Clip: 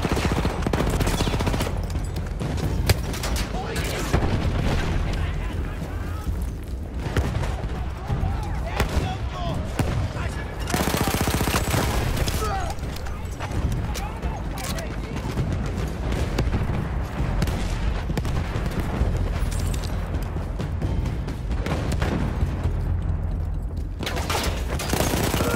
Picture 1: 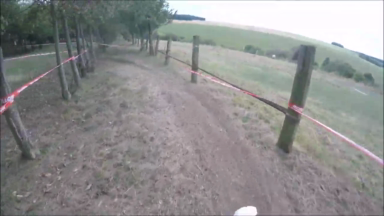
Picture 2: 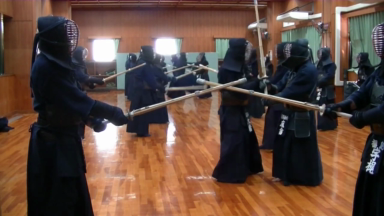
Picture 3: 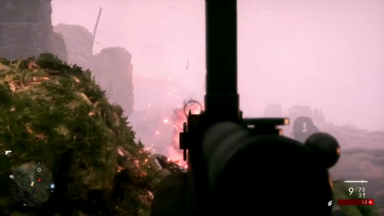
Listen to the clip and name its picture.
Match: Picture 3